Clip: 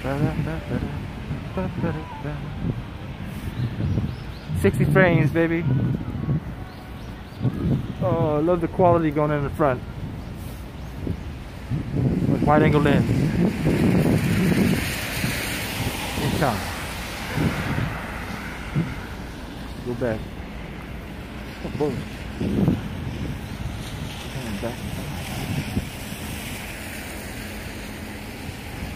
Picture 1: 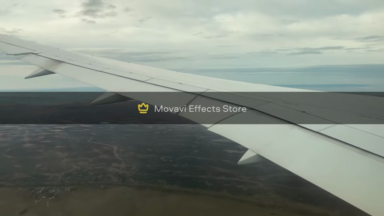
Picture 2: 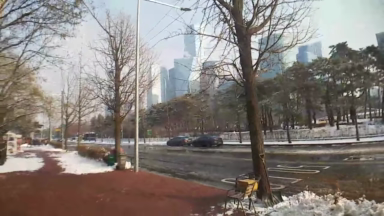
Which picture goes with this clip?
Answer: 2